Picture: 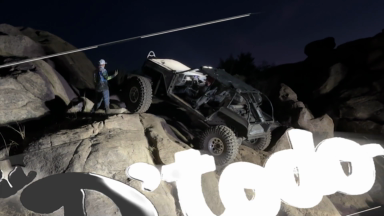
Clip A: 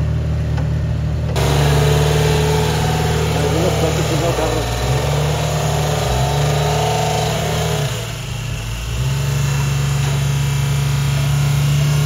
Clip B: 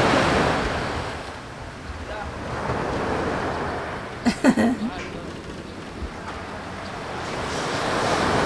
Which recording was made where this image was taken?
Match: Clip A